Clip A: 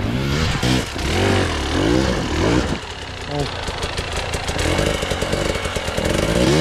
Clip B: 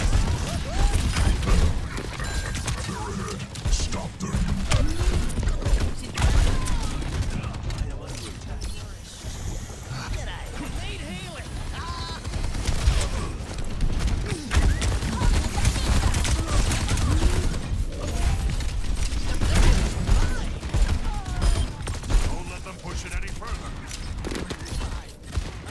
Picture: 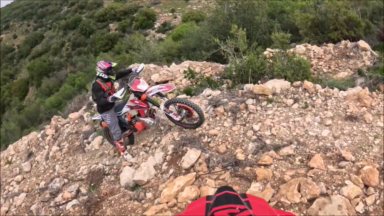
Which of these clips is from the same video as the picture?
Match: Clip A